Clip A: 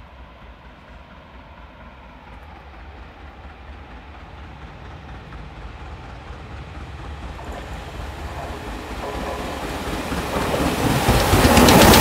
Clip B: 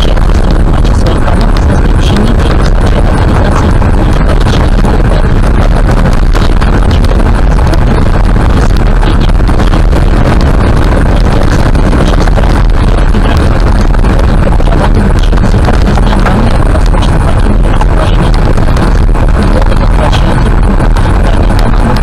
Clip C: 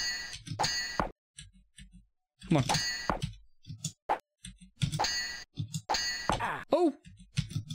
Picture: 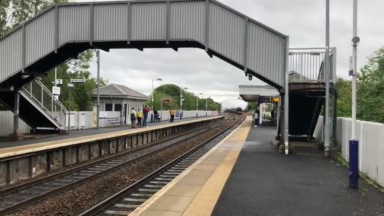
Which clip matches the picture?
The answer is A